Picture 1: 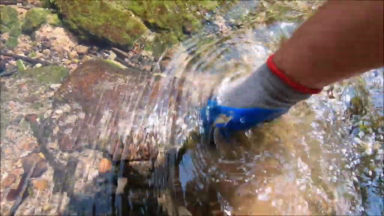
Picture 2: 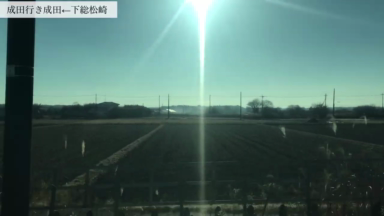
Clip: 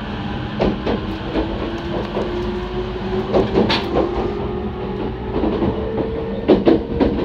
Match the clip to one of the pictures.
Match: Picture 2